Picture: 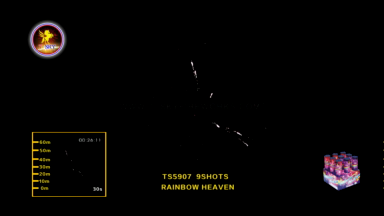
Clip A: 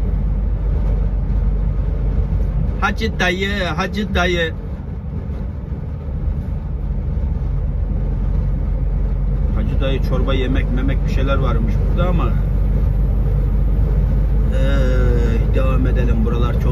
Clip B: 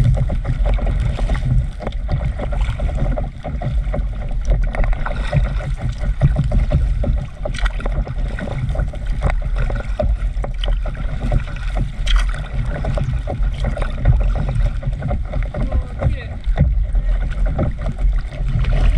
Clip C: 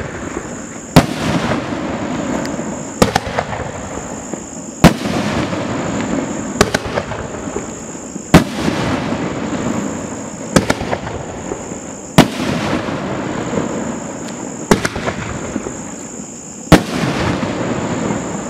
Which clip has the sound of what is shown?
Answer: C